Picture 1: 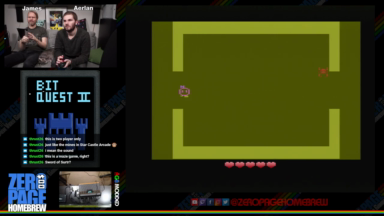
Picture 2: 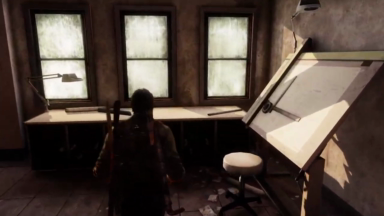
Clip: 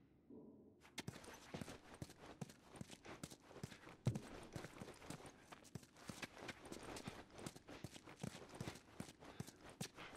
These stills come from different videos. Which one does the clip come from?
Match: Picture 2